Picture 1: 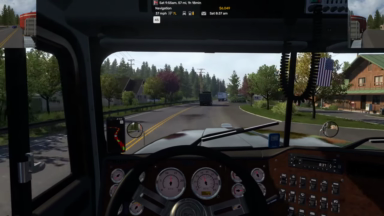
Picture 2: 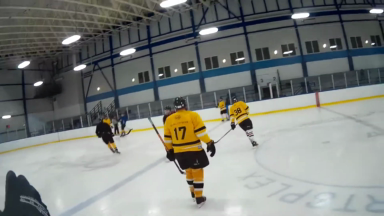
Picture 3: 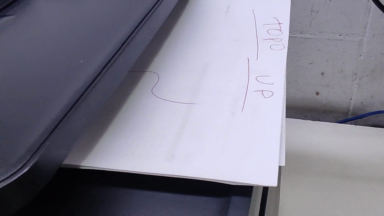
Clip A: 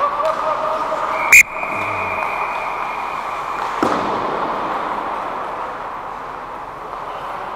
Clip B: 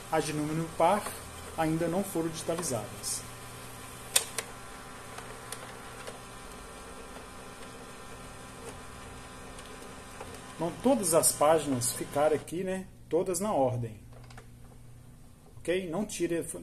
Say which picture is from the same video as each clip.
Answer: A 2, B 3